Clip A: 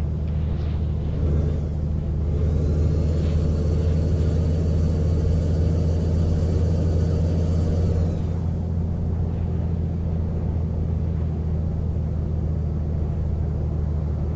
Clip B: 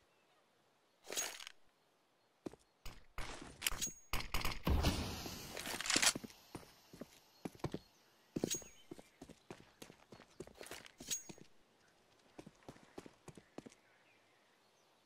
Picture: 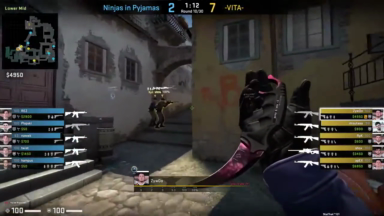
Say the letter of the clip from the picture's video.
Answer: B